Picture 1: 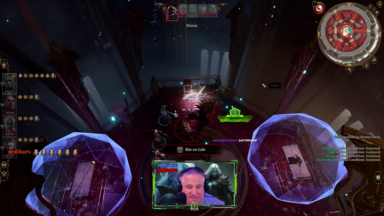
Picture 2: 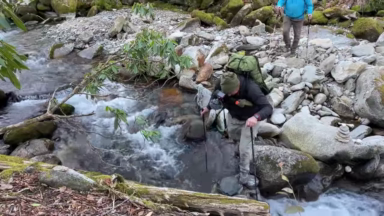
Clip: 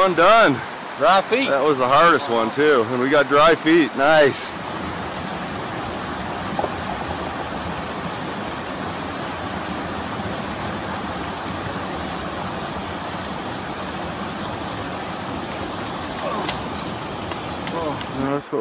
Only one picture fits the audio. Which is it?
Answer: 2